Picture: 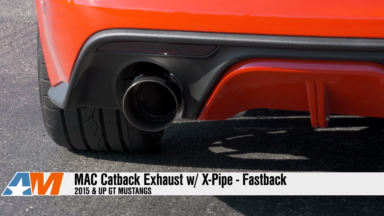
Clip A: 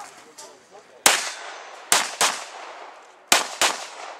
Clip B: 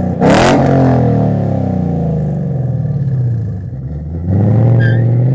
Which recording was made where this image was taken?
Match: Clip B